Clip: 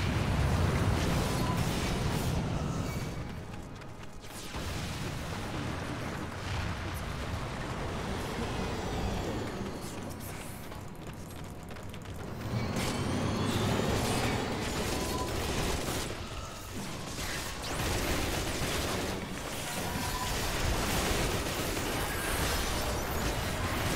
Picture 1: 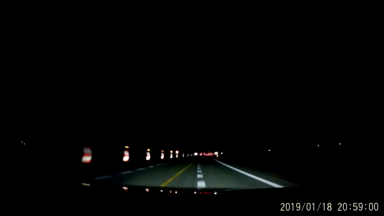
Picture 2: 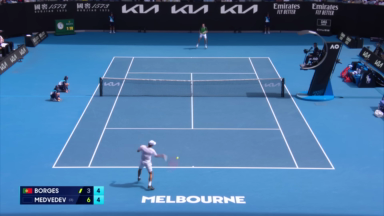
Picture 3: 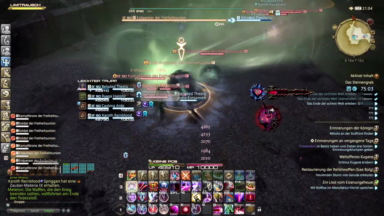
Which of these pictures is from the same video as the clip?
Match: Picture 3